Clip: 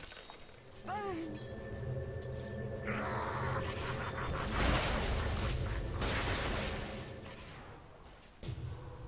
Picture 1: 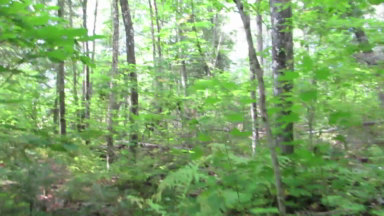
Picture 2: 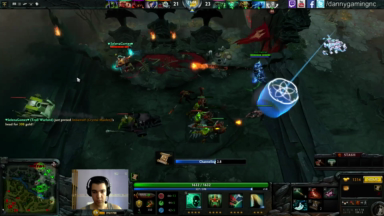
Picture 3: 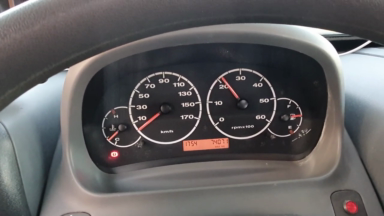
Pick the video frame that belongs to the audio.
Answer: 2